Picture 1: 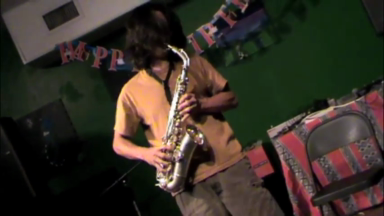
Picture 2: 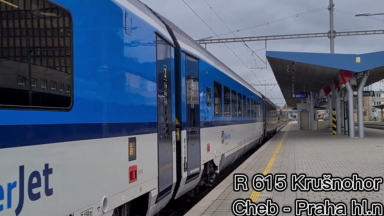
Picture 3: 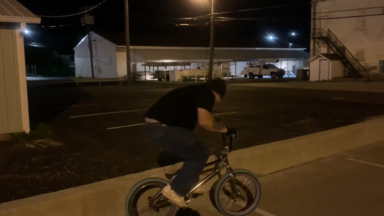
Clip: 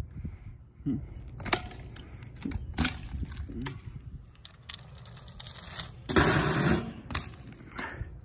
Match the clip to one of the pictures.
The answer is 3